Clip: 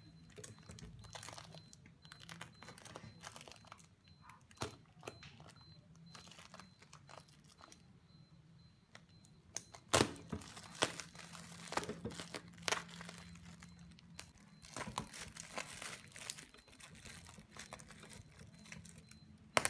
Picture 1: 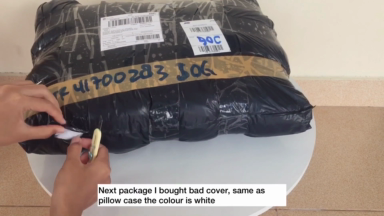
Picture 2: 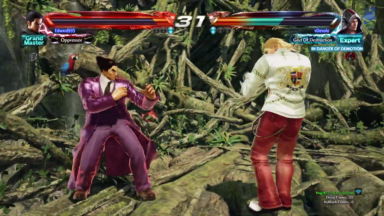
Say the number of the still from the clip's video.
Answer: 1